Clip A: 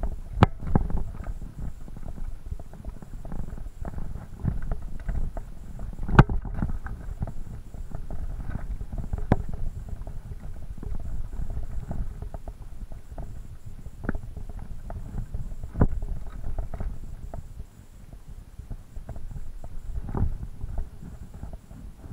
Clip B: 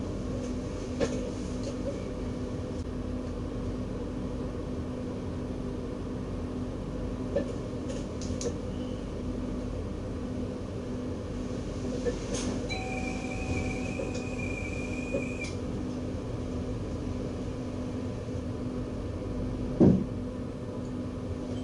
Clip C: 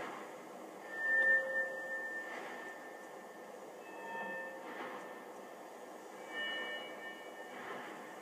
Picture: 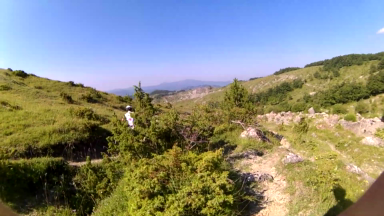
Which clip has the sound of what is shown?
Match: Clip A